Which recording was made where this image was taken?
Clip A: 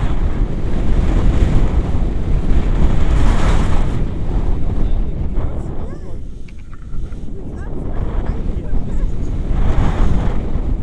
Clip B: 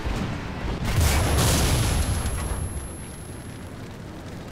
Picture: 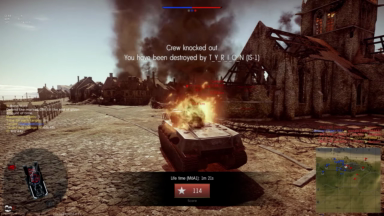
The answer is B